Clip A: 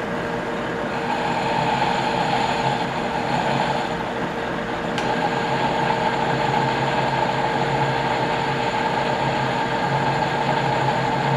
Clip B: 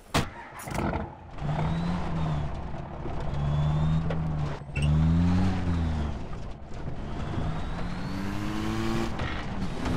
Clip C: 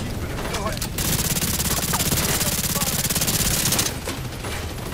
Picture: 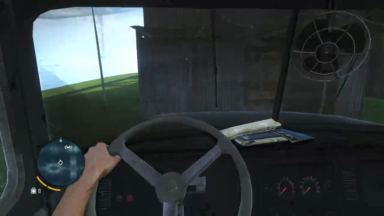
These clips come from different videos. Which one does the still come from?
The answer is B